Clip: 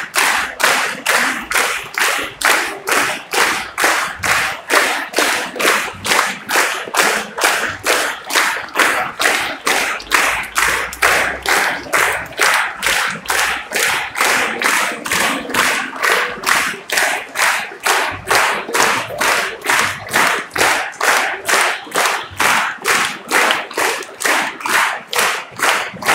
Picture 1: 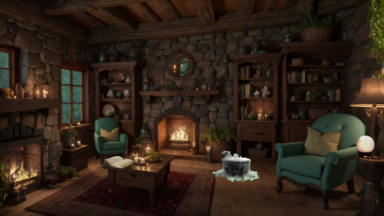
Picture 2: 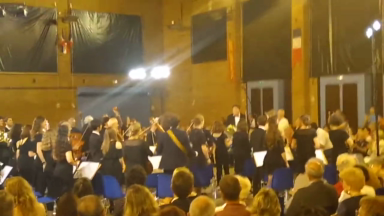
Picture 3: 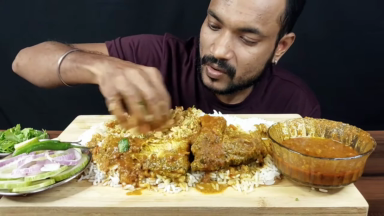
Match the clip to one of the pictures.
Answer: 2